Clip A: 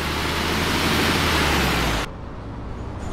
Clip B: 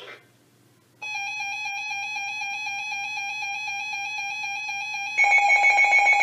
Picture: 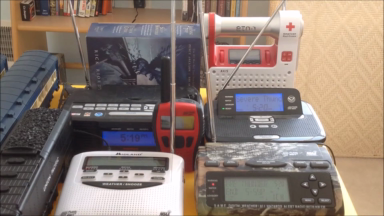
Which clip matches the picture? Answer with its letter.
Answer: B